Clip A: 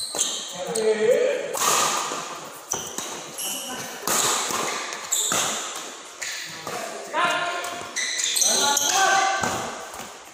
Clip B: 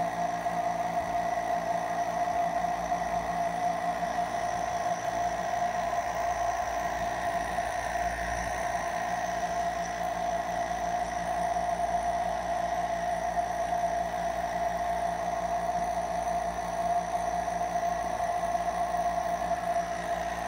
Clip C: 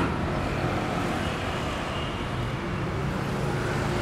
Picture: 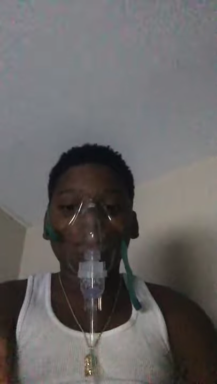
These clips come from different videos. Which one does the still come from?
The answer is B